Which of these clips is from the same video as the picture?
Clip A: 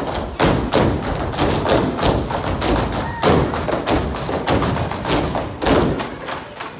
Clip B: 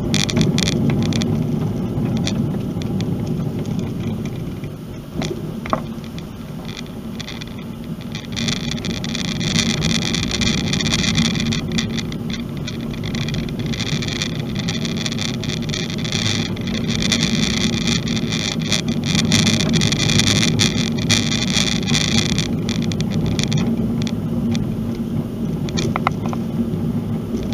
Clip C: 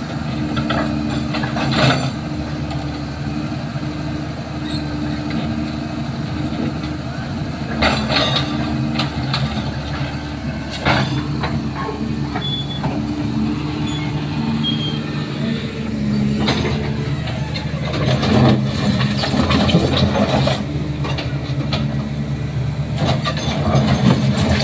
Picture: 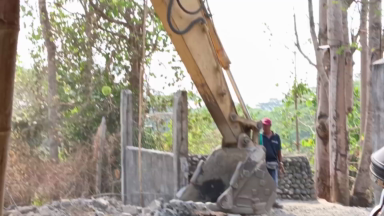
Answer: C